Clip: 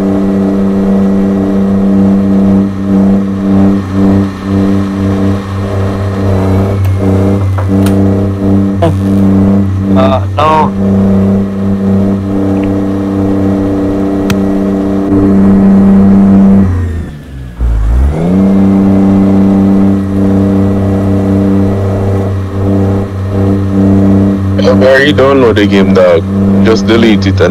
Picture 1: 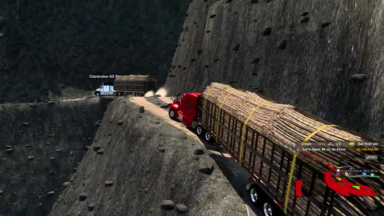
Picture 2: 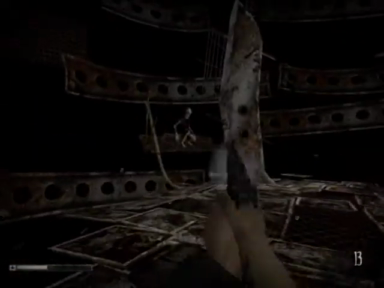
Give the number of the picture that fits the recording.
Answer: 1